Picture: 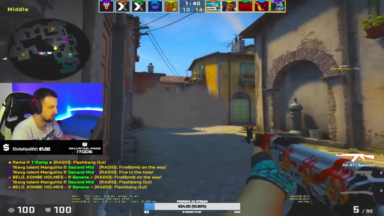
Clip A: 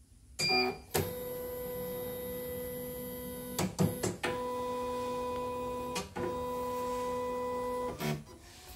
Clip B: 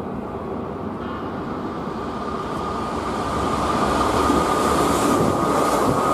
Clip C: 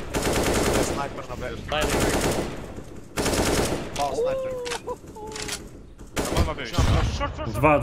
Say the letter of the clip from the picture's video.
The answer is C